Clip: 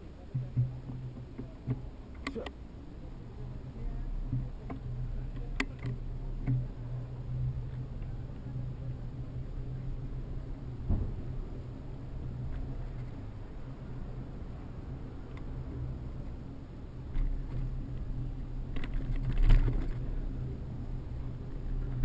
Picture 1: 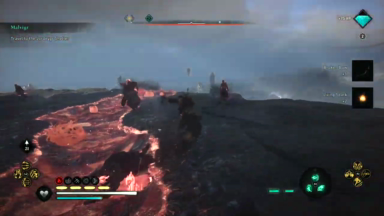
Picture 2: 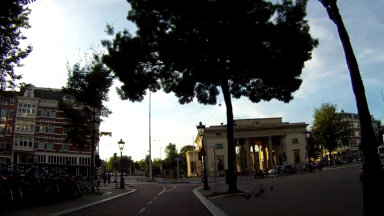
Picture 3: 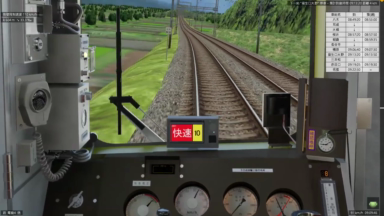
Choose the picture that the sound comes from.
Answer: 2